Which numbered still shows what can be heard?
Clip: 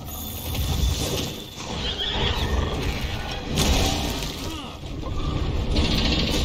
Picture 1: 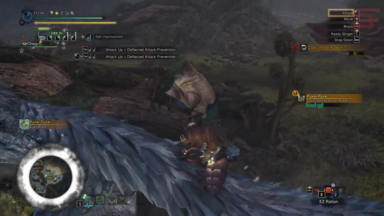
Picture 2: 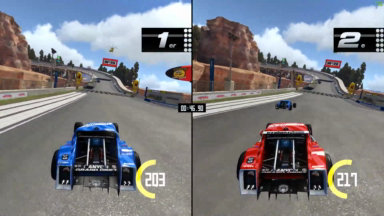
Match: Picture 1